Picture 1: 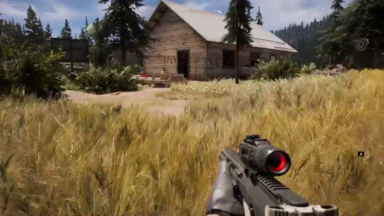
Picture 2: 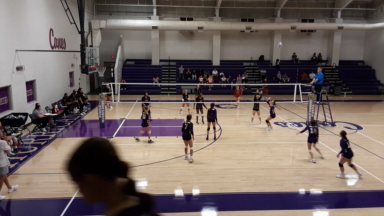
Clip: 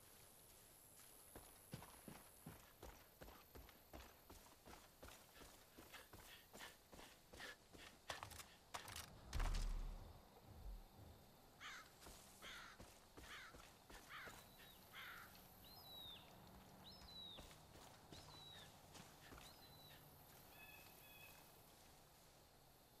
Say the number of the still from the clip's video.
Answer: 1